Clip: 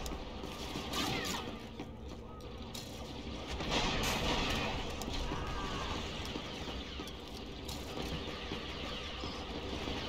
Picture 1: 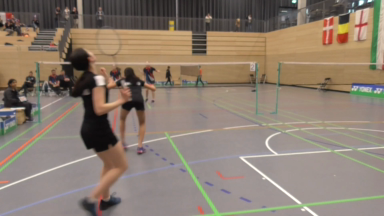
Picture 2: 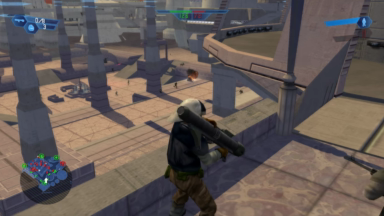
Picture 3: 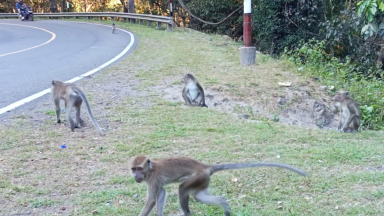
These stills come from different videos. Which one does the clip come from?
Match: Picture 2